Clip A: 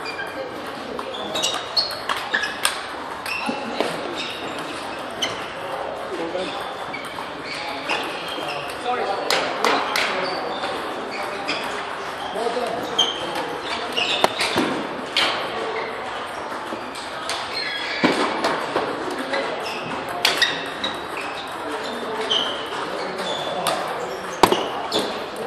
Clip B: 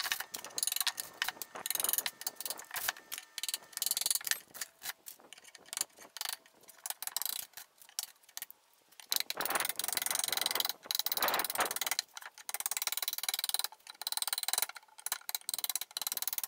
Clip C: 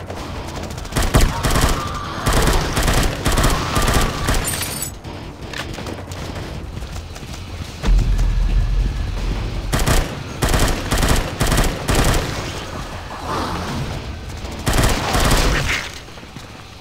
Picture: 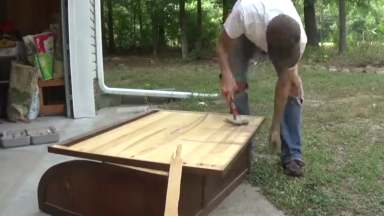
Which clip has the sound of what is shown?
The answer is B